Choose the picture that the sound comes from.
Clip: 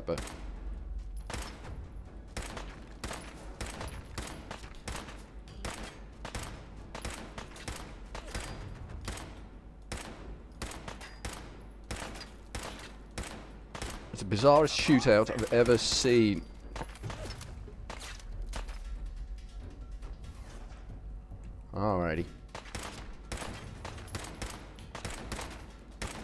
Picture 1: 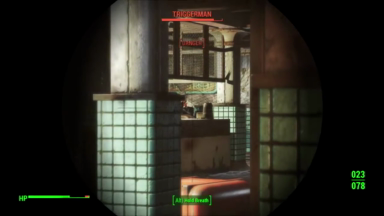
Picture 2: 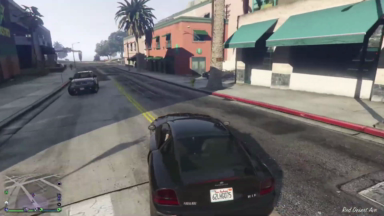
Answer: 1